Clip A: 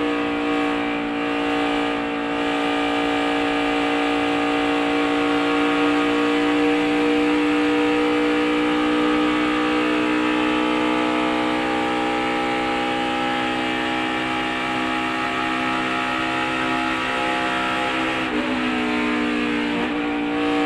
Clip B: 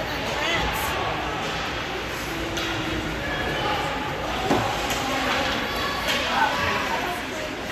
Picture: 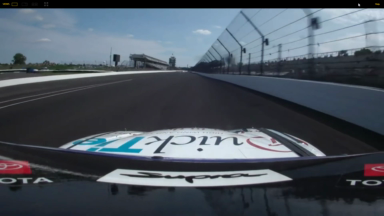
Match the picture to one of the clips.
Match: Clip A